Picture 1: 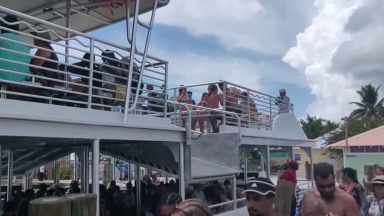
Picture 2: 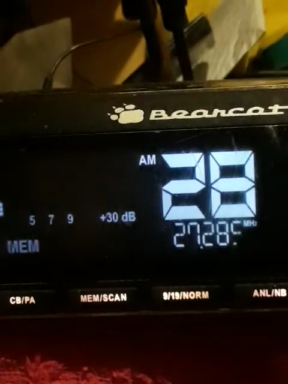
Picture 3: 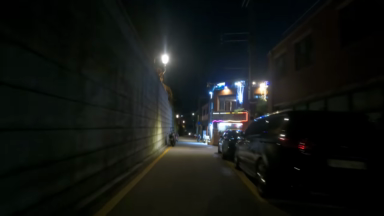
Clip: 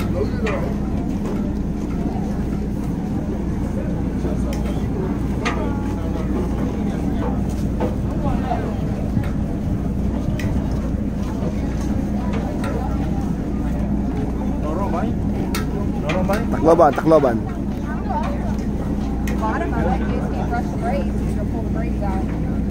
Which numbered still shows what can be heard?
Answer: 1